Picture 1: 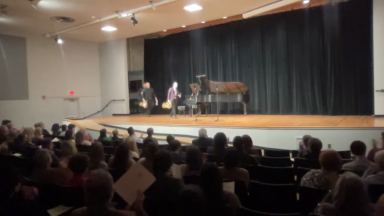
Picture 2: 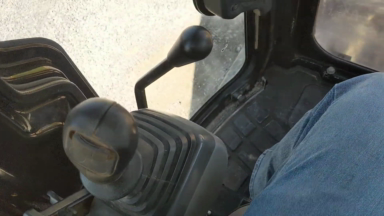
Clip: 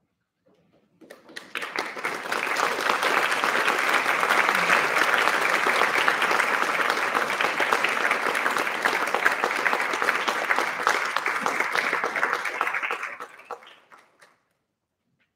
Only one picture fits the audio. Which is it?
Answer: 1